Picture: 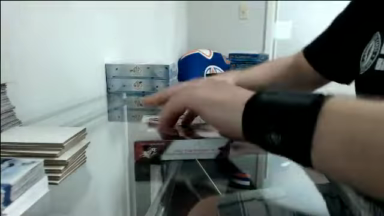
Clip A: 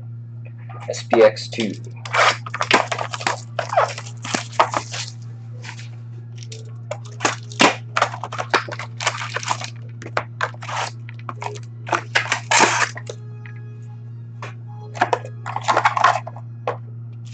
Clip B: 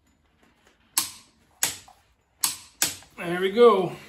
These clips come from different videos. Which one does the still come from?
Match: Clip A